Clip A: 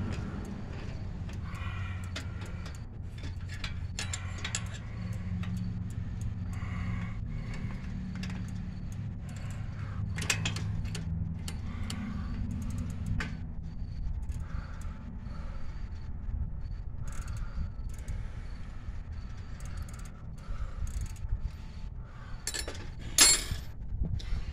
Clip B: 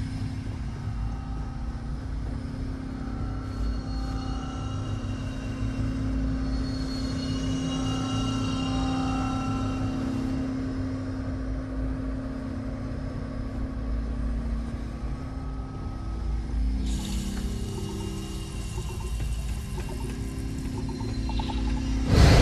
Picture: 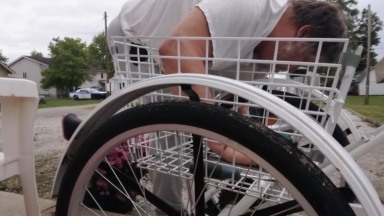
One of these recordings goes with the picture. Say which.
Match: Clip A